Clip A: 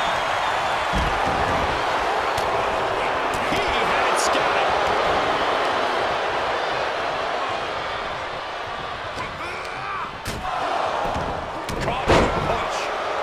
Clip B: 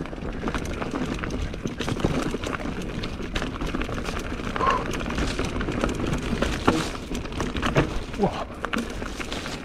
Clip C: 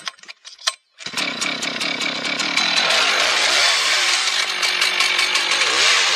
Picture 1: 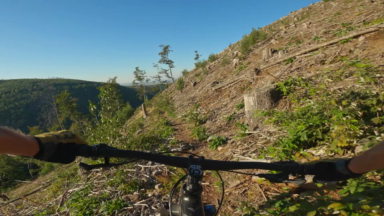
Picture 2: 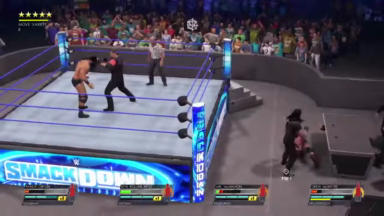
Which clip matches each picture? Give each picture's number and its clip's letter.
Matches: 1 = B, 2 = A